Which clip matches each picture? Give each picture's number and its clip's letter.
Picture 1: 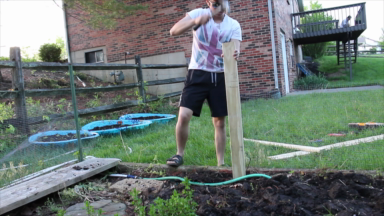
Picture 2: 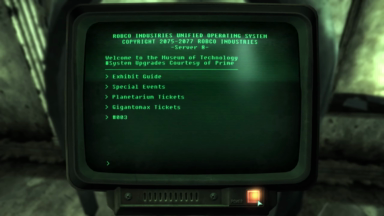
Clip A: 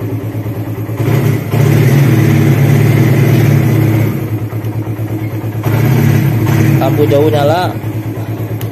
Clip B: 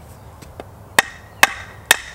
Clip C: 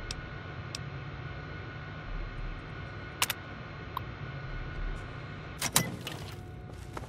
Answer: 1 B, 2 C